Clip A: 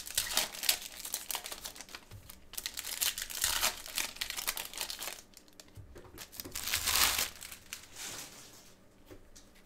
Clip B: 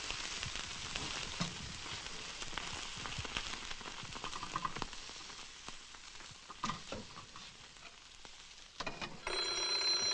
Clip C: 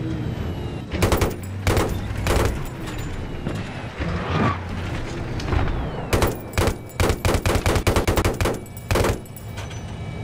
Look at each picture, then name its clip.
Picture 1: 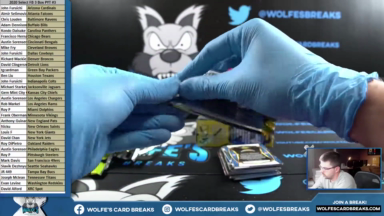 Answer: A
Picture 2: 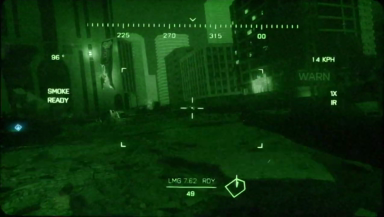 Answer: C